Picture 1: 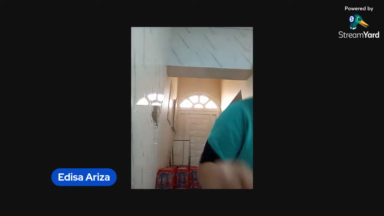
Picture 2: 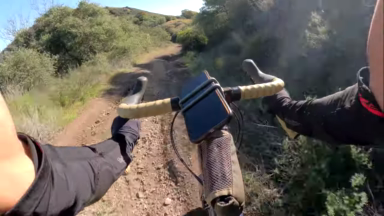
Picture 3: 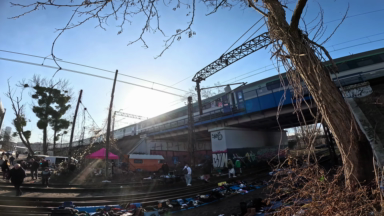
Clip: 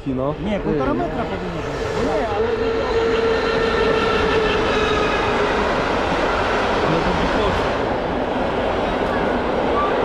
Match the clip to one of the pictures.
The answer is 3